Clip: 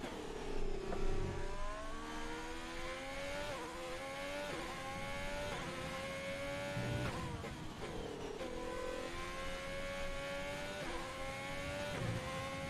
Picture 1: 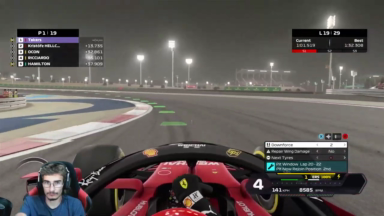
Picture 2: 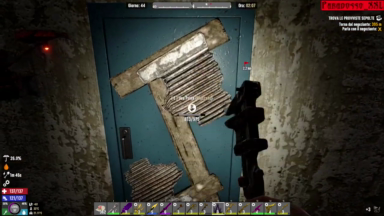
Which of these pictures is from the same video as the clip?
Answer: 1